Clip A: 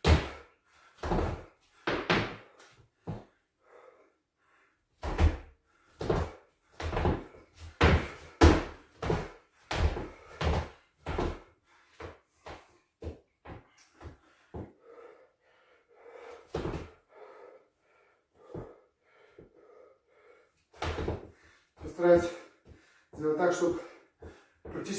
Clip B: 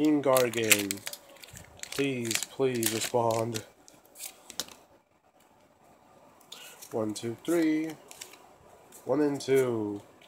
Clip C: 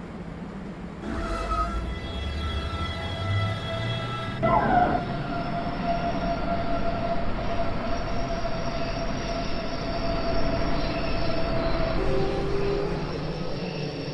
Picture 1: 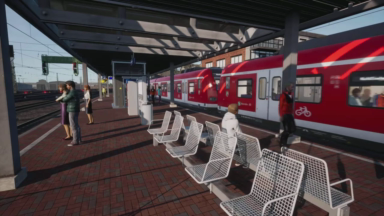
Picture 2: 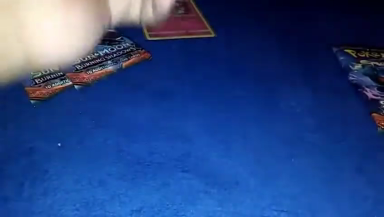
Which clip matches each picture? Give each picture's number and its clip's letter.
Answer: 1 C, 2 B